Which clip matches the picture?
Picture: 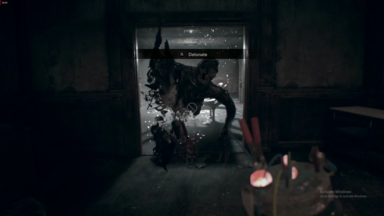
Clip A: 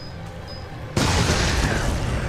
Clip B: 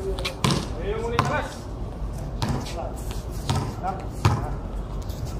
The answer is A